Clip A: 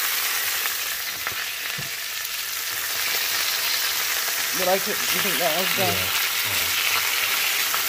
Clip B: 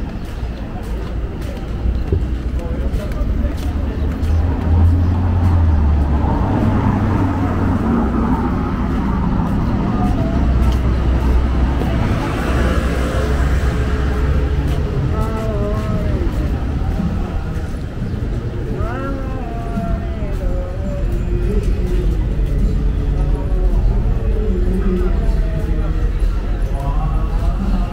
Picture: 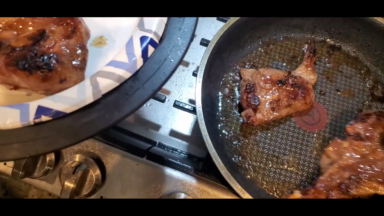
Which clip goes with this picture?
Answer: A